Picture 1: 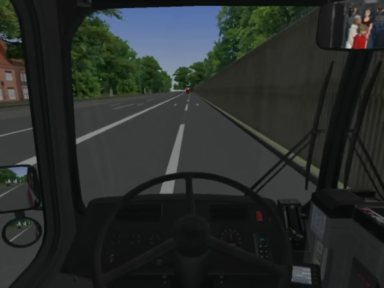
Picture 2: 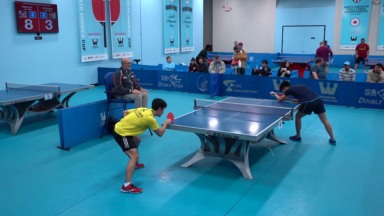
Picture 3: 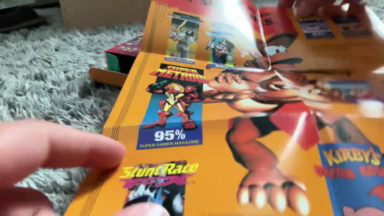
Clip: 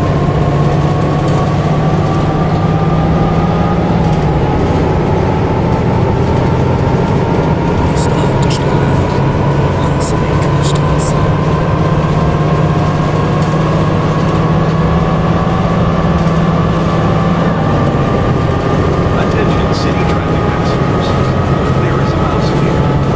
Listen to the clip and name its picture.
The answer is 1